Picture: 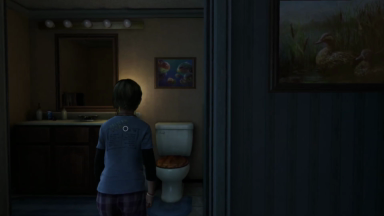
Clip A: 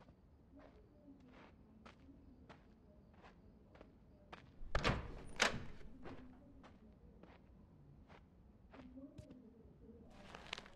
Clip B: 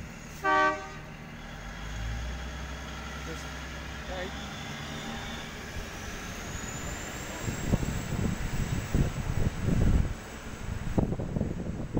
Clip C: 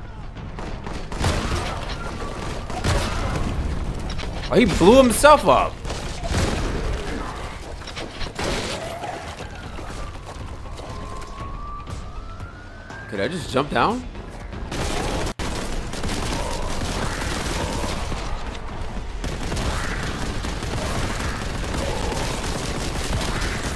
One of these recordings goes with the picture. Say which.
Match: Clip A